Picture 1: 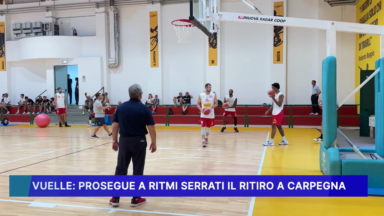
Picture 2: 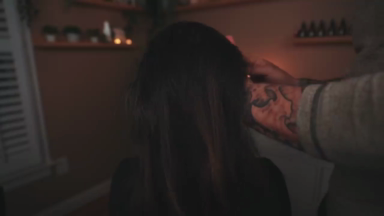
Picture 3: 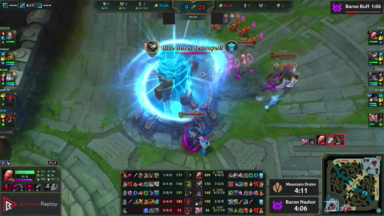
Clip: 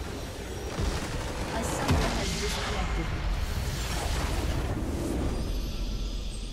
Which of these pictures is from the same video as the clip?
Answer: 3